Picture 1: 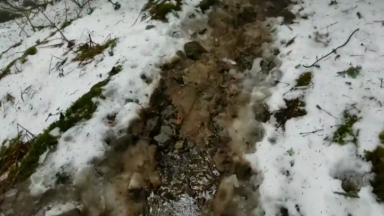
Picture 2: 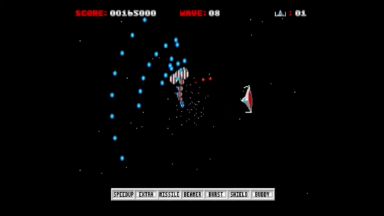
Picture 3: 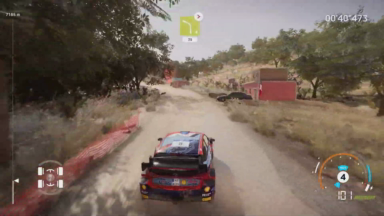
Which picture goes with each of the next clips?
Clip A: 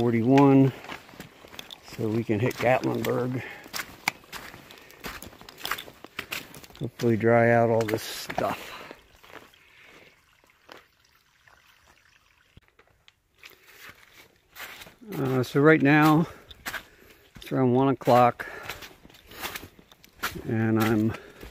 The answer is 1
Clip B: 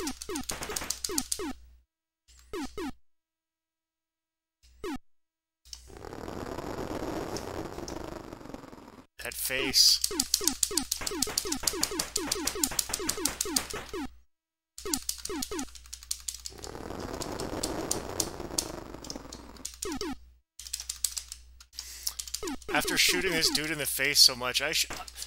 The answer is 2